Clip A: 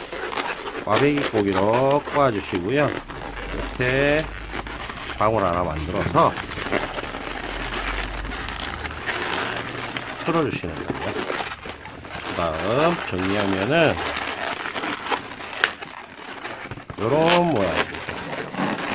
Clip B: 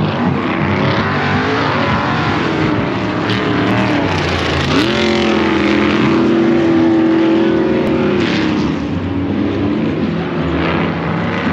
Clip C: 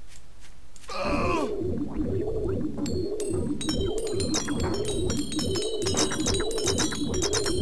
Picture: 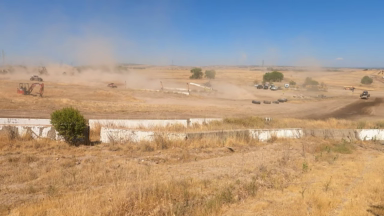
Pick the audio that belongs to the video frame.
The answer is B